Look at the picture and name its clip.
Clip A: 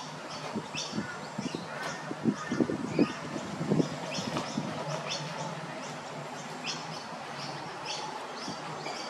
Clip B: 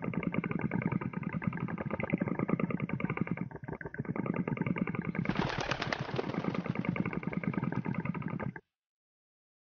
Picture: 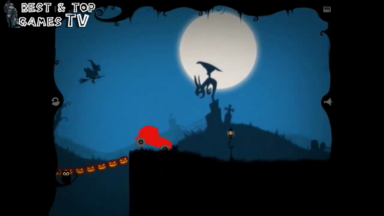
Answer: B